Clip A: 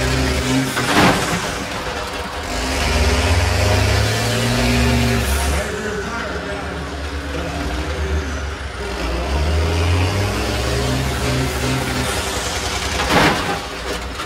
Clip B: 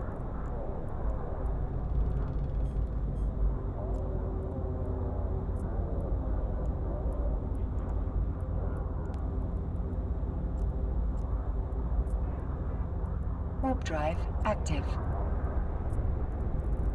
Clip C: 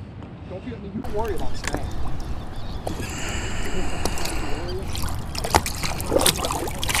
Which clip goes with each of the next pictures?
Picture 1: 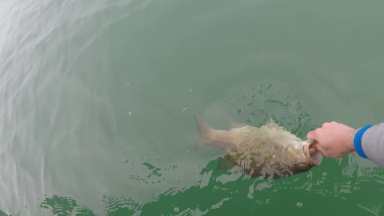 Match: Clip C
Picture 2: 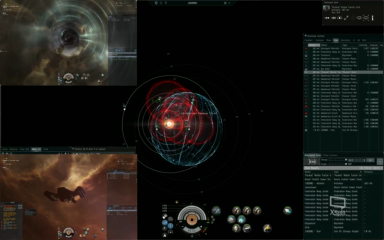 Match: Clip B